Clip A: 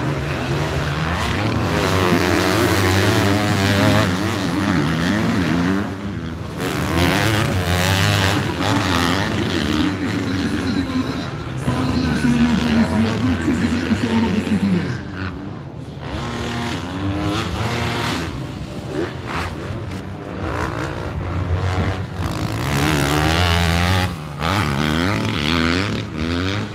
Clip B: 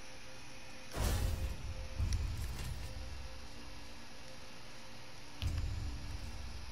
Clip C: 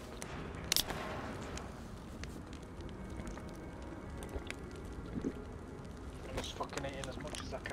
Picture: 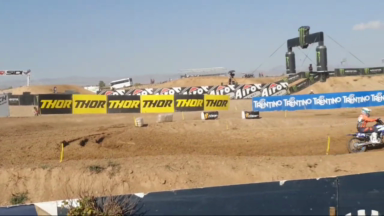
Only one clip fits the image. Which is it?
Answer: A